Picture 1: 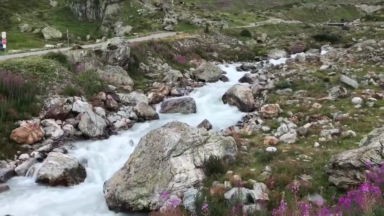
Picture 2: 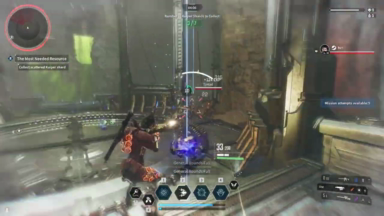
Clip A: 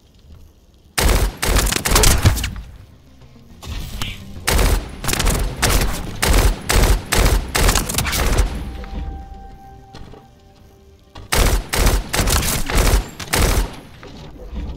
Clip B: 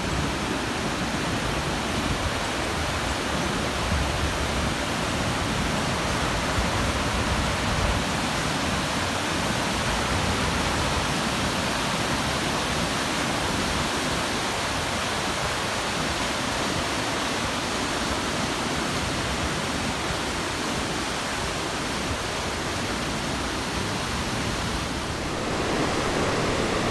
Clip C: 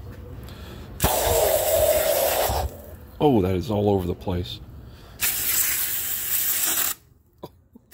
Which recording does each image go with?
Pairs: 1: B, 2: A